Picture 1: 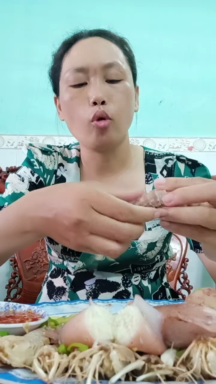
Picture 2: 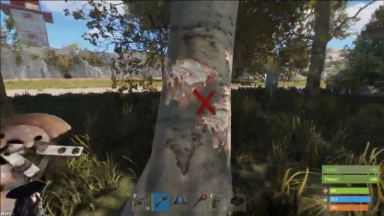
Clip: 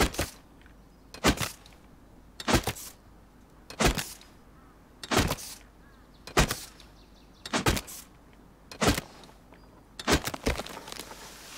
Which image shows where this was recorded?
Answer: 2